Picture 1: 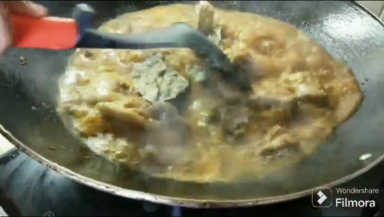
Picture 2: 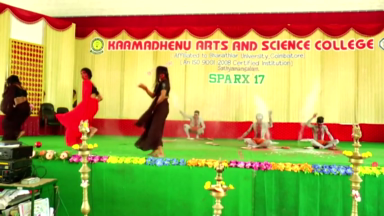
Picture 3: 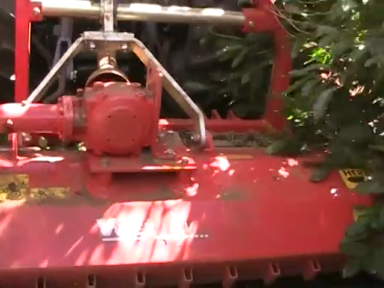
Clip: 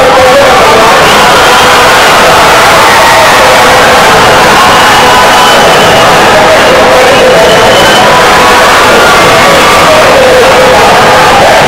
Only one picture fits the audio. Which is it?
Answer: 2